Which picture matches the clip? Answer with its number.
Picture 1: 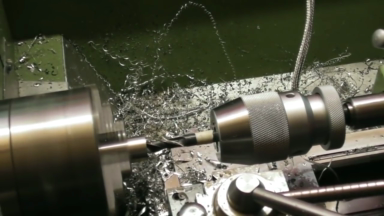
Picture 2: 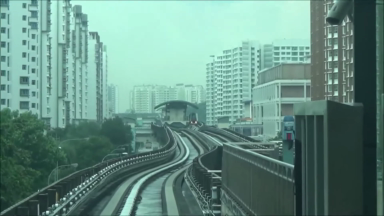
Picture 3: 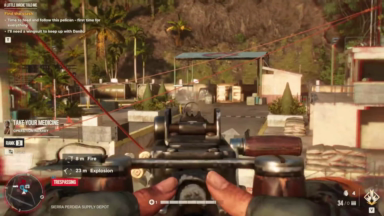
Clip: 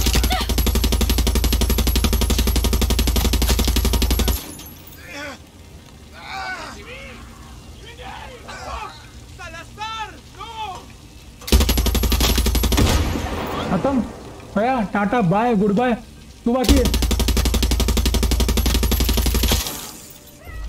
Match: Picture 3